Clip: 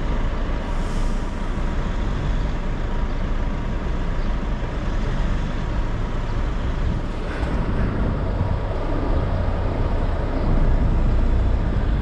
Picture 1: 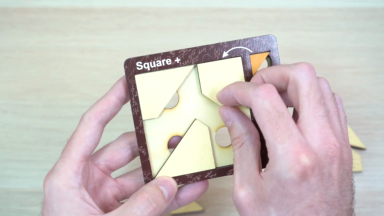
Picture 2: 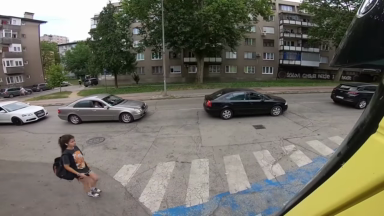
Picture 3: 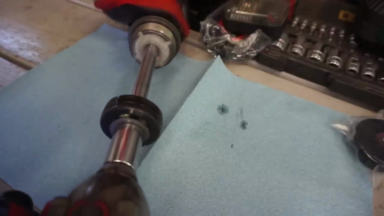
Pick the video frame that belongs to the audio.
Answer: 2